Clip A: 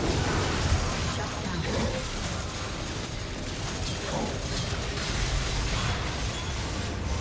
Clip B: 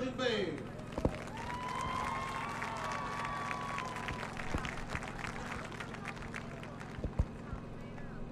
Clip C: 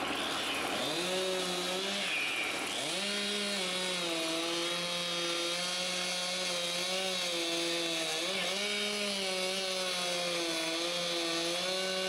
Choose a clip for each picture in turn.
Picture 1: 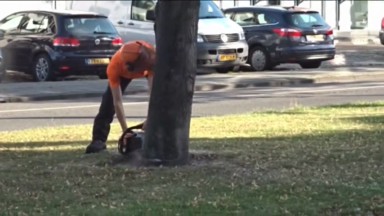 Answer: C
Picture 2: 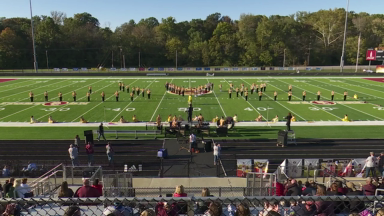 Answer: B